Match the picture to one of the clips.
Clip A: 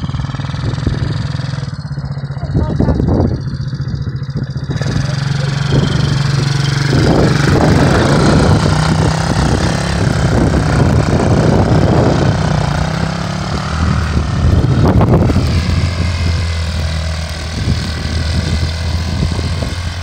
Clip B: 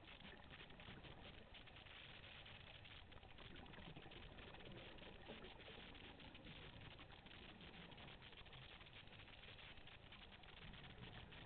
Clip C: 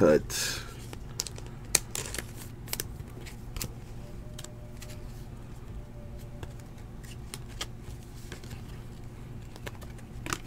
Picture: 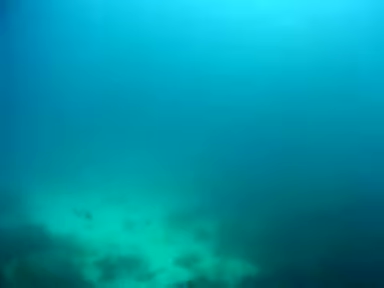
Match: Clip B